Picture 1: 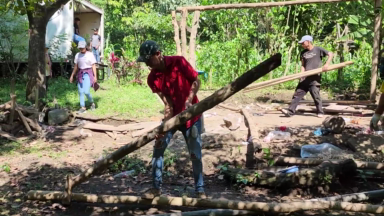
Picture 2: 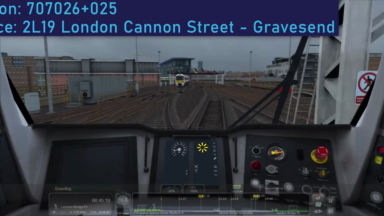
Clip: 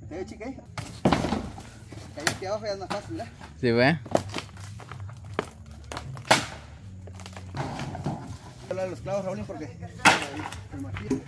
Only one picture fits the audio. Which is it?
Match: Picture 1